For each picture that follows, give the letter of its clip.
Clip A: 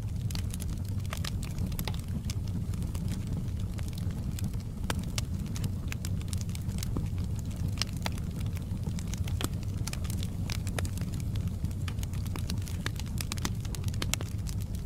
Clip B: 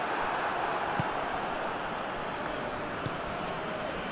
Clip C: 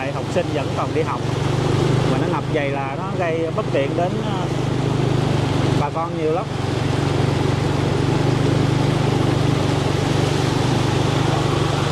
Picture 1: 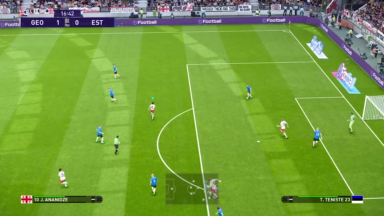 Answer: B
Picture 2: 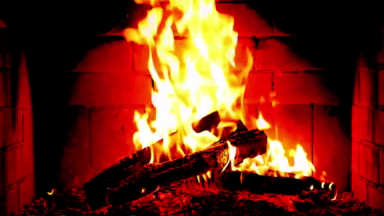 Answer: A